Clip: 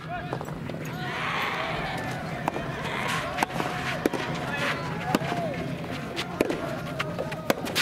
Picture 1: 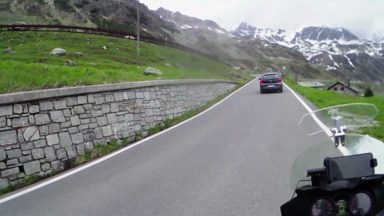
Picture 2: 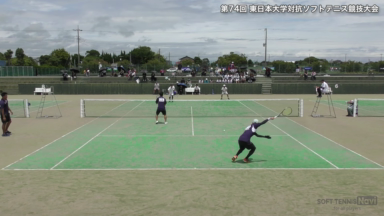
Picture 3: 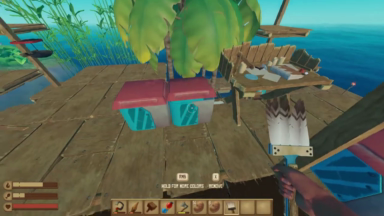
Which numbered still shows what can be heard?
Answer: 2